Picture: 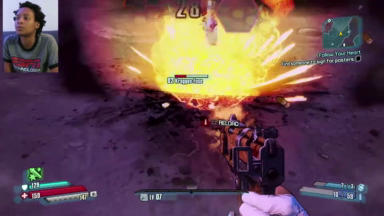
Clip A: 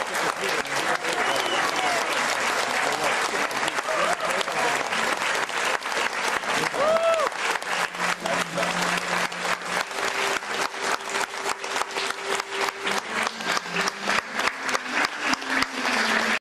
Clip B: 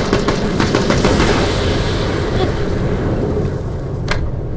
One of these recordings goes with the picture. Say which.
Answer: B